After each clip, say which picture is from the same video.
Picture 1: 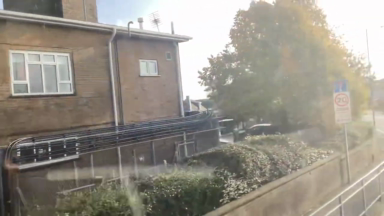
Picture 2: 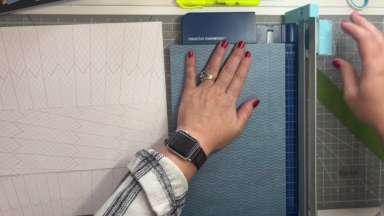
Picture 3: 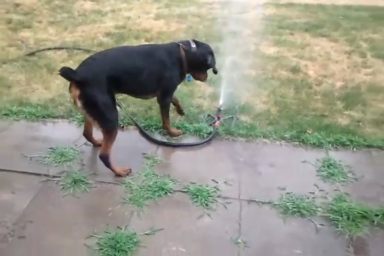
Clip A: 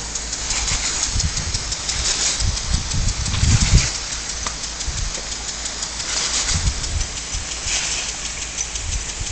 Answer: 3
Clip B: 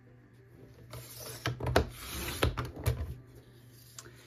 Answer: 2